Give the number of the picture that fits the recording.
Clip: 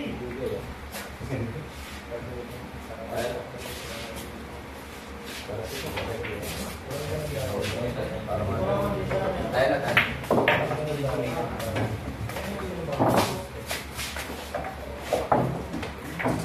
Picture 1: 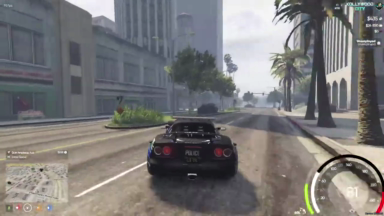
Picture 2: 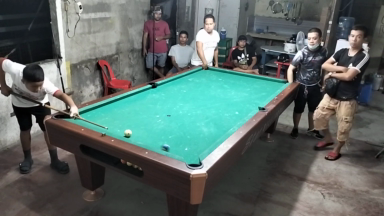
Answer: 2